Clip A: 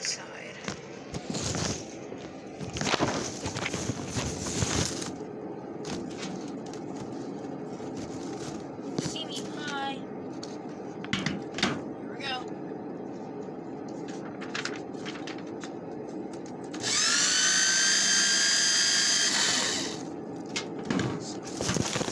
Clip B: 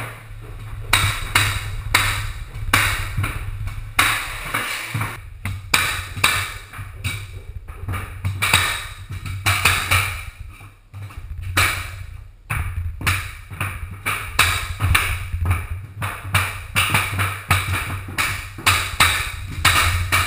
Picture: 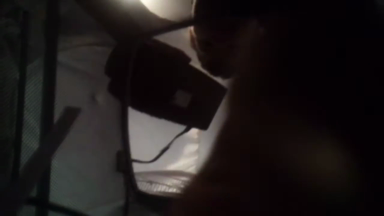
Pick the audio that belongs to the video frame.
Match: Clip A